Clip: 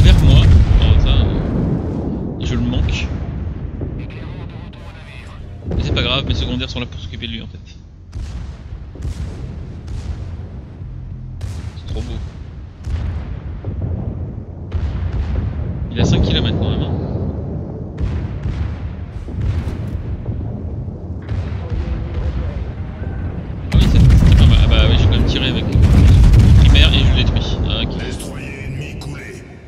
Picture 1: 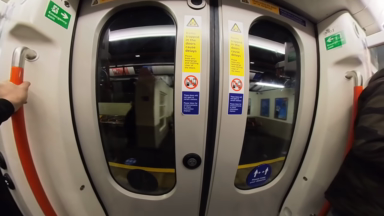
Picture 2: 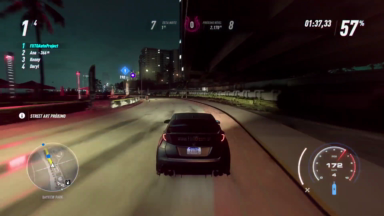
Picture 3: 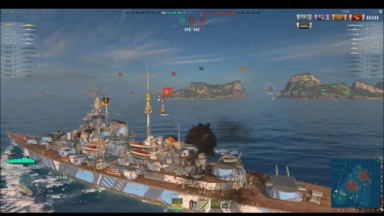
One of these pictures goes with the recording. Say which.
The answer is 3